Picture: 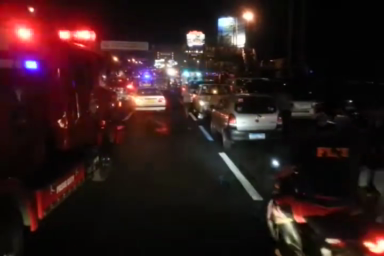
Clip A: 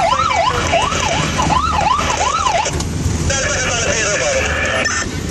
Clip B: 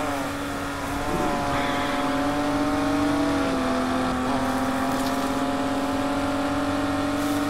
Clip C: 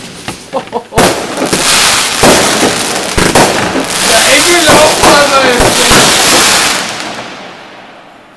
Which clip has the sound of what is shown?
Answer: A